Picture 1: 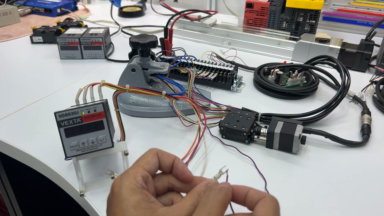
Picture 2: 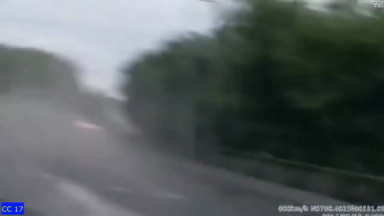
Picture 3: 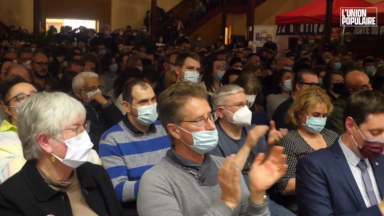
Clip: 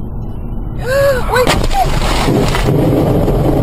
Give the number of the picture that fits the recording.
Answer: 2